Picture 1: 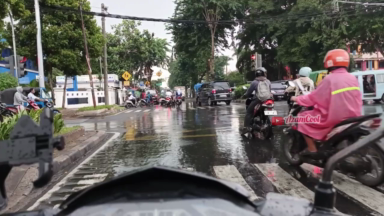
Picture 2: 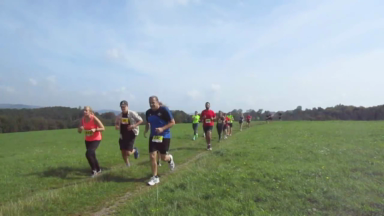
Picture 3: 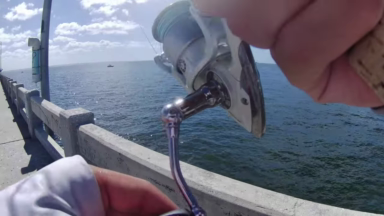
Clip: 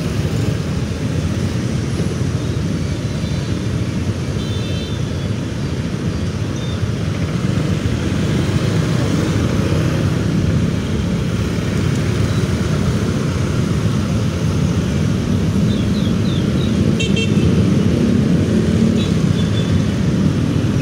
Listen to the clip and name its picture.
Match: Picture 1